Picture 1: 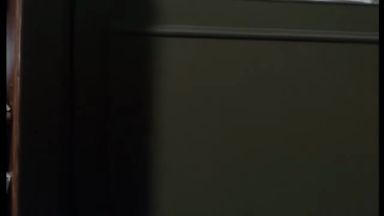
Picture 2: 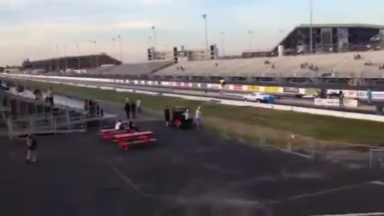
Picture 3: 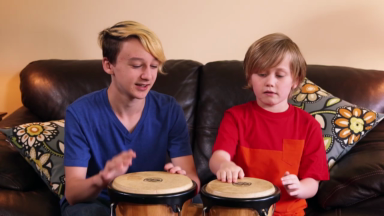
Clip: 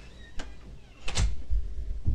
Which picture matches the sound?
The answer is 1